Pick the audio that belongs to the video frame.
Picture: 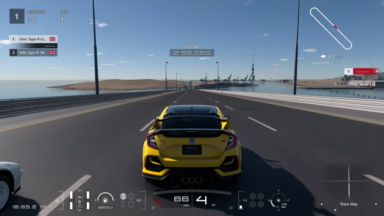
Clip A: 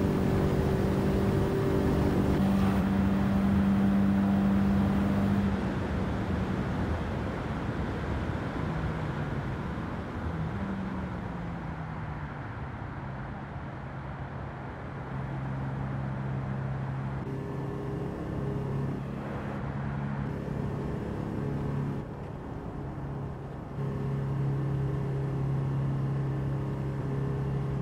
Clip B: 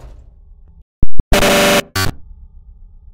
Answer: A